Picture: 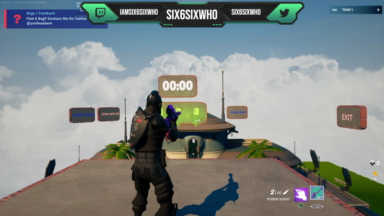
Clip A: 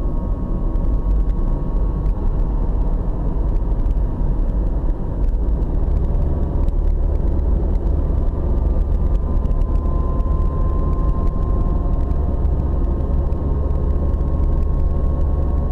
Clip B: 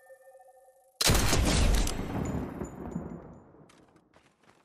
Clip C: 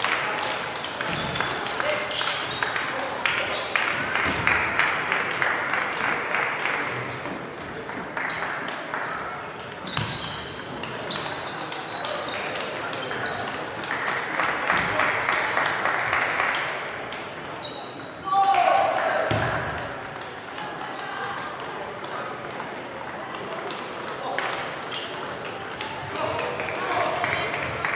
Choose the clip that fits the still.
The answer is B